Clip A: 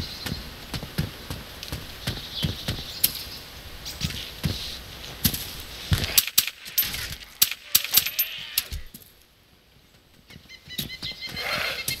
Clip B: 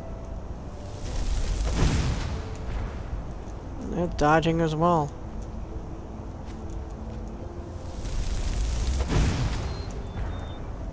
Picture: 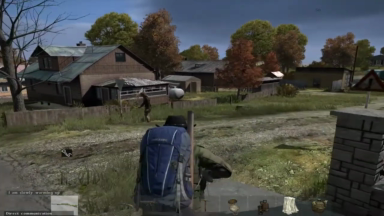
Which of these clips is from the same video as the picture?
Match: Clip A